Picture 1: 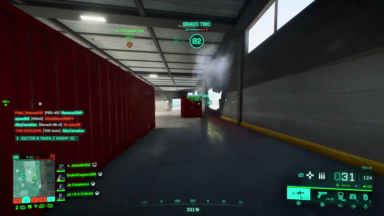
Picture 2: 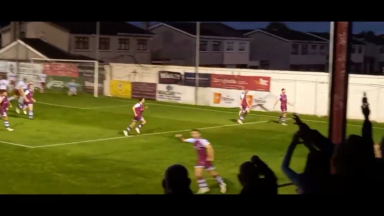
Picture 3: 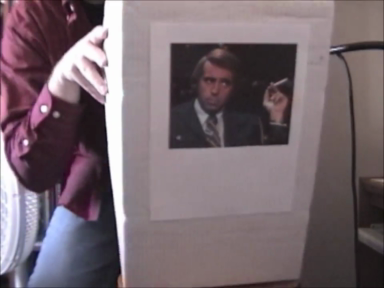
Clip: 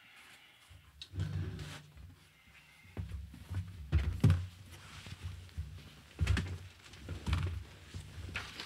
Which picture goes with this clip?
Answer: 3